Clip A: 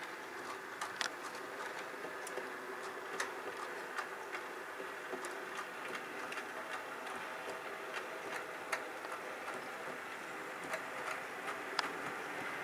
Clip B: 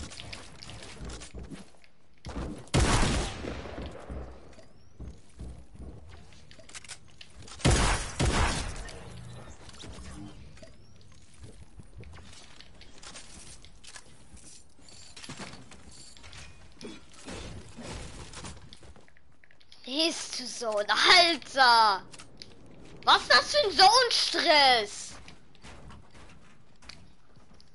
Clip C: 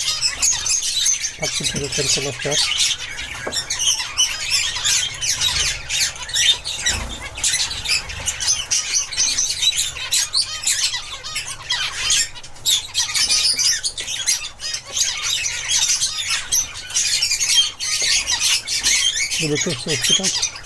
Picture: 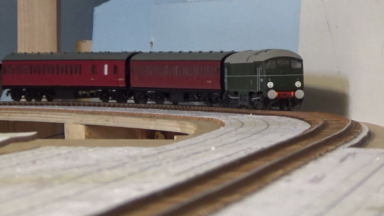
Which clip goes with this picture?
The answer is A